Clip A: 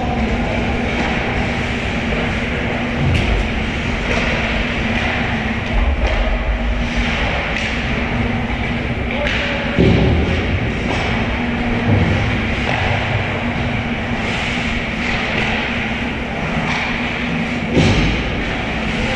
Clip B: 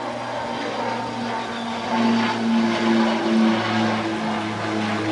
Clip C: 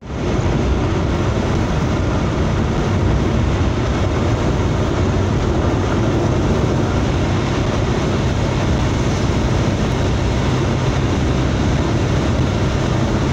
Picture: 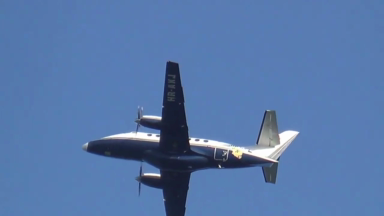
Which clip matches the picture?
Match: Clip B